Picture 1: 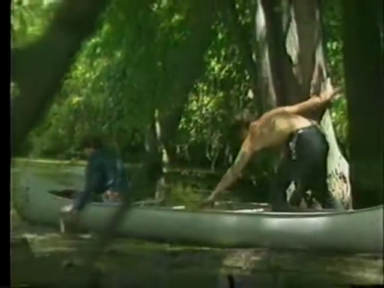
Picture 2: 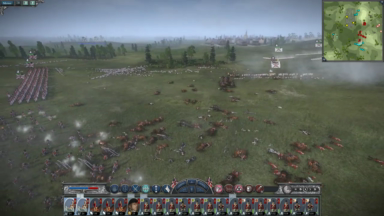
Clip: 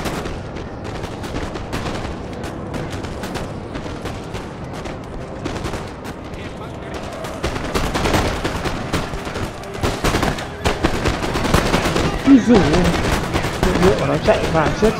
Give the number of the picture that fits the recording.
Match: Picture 2